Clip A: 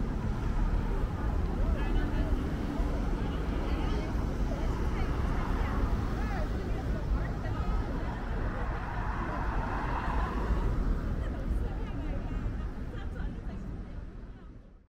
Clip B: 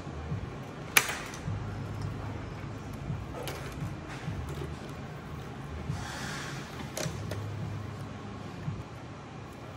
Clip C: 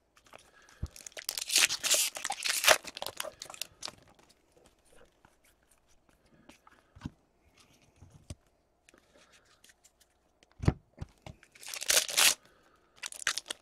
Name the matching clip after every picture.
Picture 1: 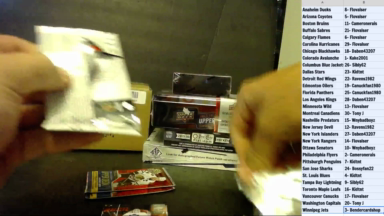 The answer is C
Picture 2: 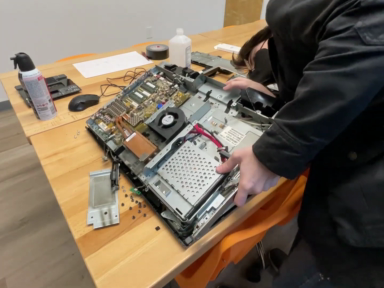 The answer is B